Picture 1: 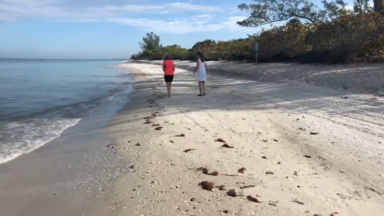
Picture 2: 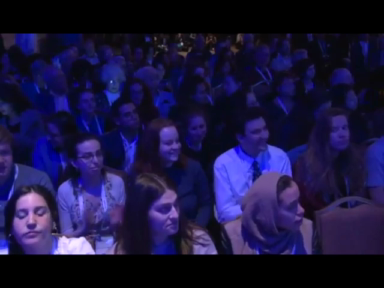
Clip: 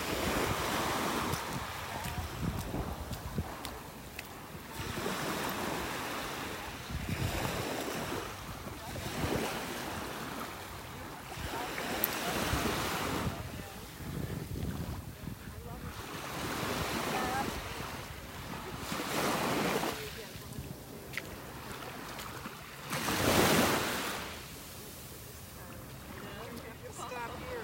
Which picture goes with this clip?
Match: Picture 1